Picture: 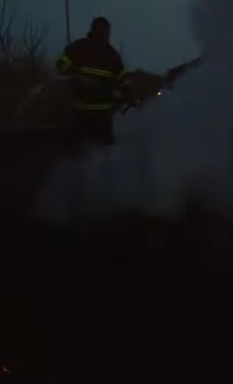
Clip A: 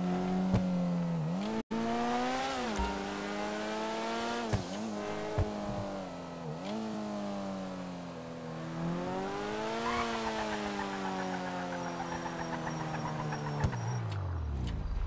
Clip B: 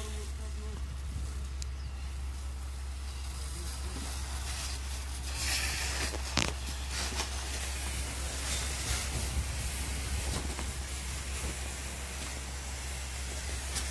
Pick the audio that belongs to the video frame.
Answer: B